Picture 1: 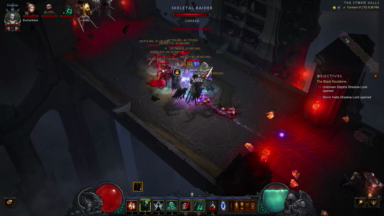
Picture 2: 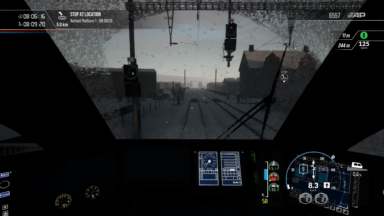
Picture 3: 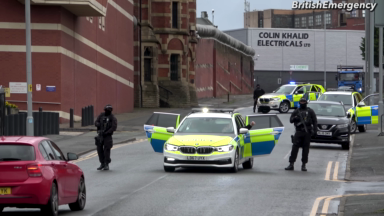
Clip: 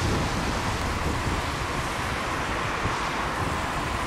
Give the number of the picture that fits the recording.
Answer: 3